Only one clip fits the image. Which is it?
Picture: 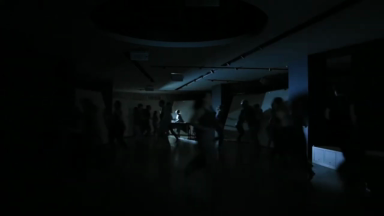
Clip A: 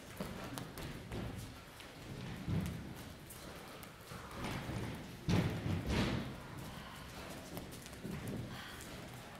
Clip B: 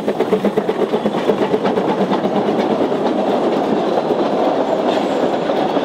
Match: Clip A